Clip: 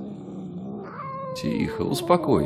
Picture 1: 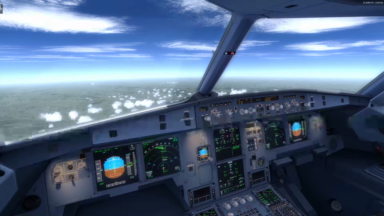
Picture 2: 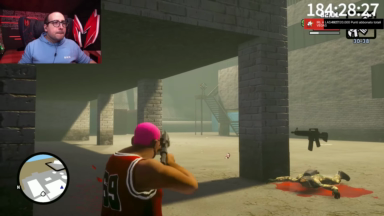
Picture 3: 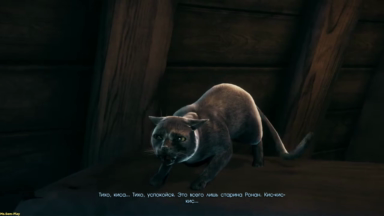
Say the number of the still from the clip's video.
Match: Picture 3